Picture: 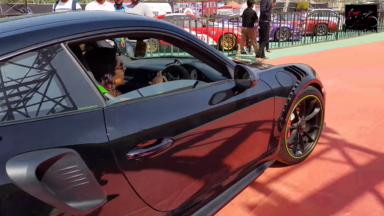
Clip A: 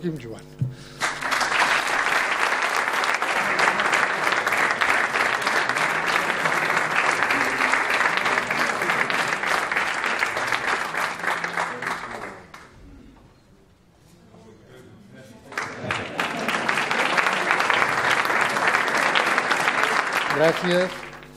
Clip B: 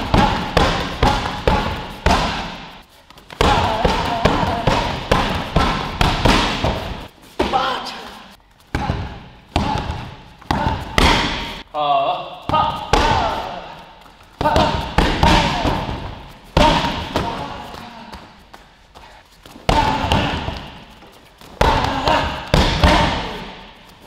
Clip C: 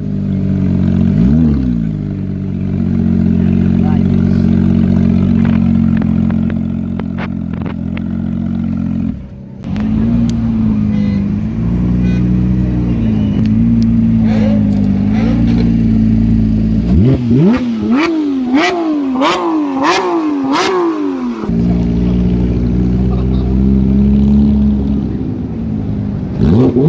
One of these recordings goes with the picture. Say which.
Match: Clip C